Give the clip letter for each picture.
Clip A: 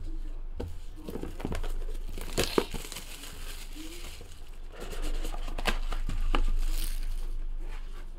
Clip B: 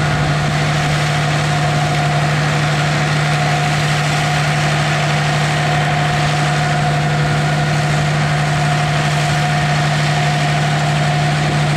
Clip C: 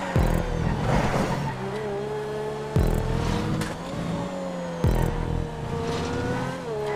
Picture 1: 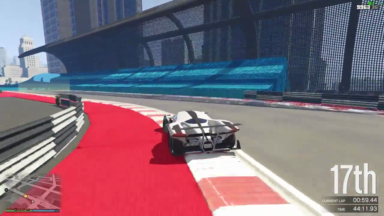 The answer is C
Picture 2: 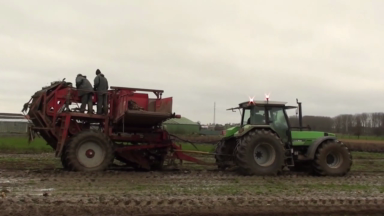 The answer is B